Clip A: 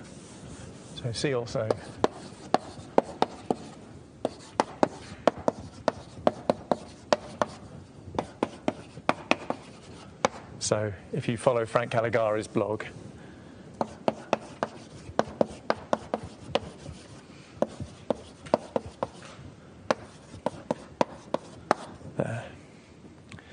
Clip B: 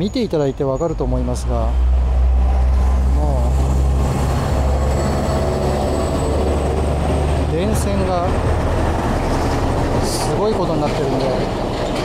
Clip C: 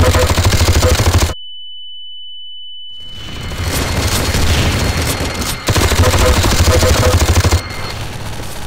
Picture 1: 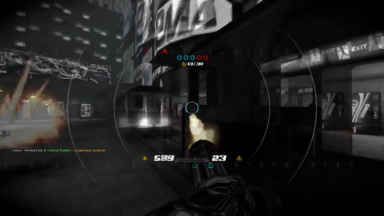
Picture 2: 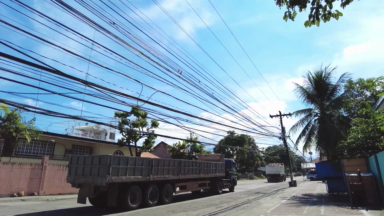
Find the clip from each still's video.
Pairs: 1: C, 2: B